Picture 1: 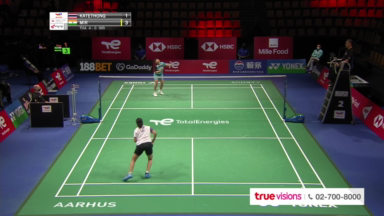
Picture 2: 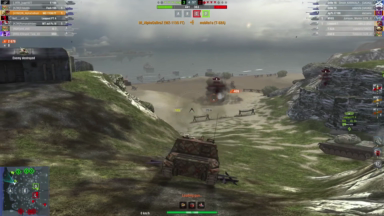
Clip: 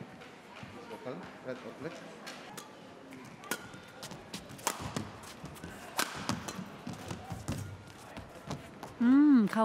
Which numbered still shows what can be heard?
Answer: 1